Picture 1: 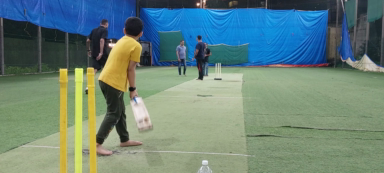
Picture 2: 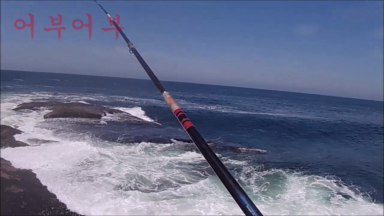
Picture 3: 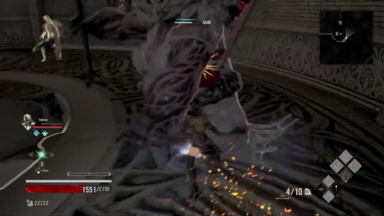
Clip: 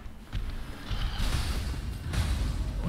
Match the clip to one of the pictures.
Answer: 3